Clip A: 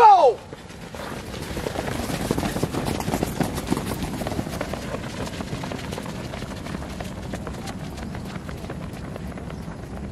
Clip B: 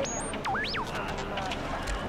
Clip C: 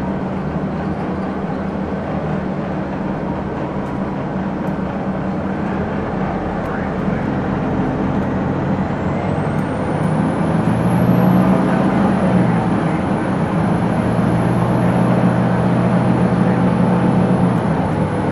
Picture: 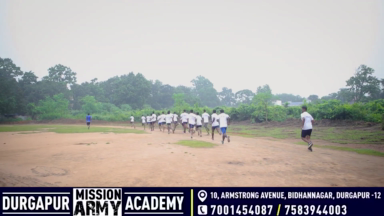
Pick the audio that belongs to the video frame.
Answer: A